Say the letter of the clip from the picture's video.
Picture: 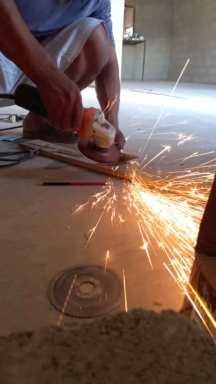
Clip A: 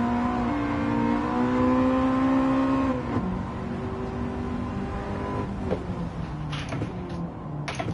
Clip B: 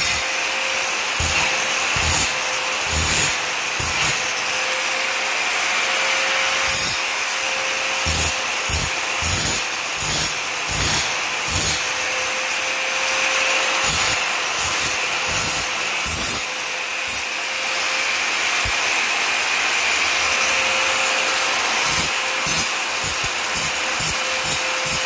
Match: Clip B